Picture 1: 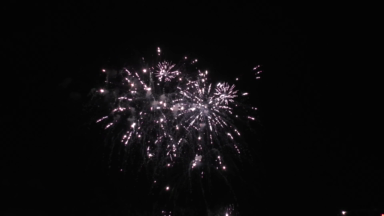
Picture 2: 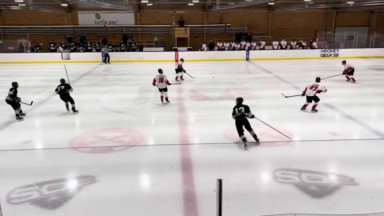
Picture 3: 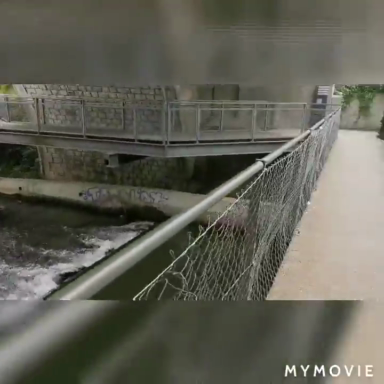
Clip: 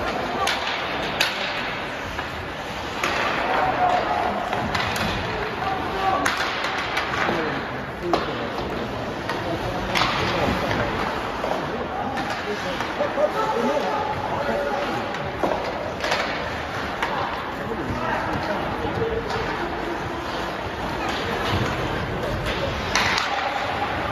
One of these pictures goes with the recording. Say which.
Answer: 2